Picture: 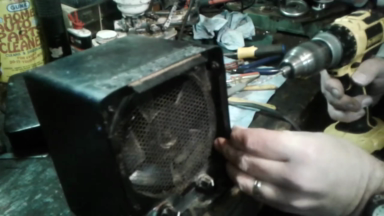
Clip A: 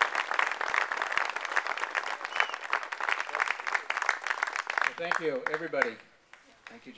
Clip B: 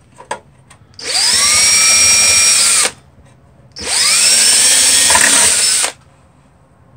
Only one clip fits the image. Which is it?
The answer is B